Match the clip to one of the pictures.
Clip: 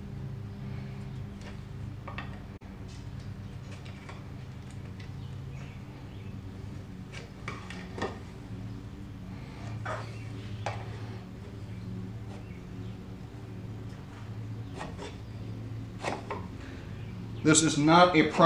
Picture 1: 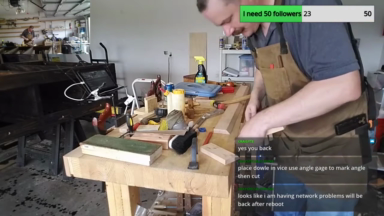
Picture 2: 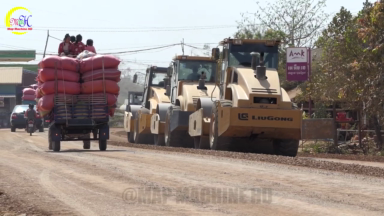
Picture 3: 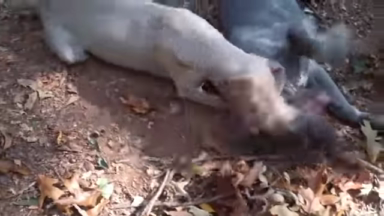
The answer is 1